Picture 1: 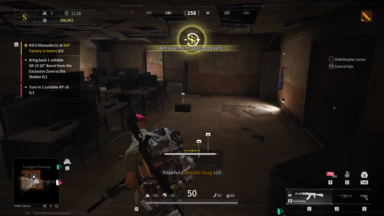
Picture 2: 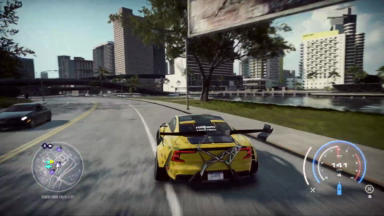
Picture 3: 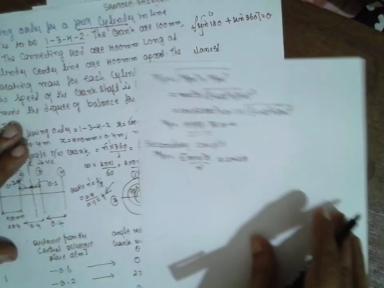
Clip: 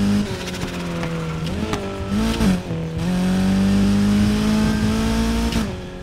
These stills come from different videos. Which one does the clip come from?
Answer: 2